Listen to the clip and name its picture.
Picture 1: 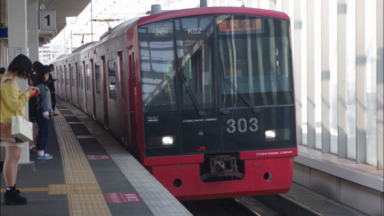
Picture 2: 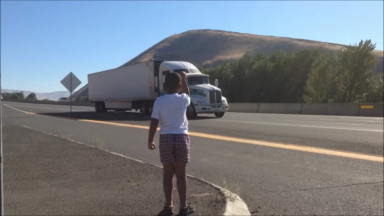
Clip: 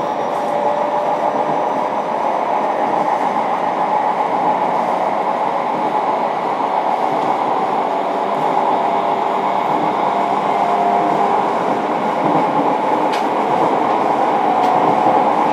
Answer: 1